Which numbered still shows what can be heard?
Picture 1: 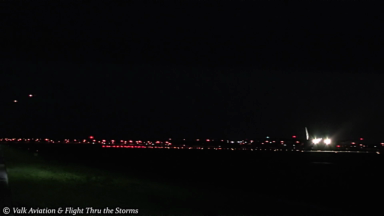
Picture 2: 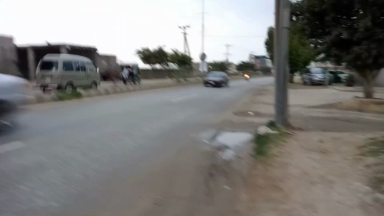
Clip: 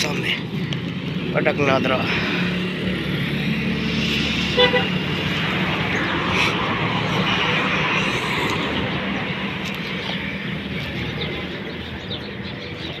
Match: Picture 2